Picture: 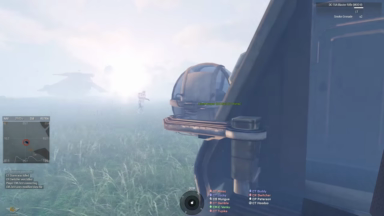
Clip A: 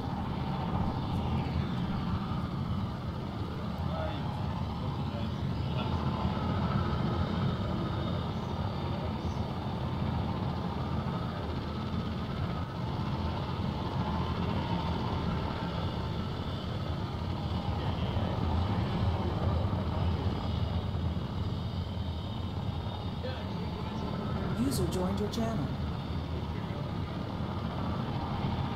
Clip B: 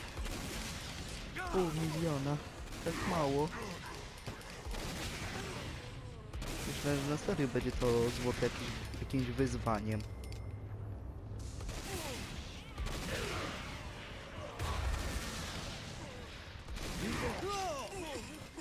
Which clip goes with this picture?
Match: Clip A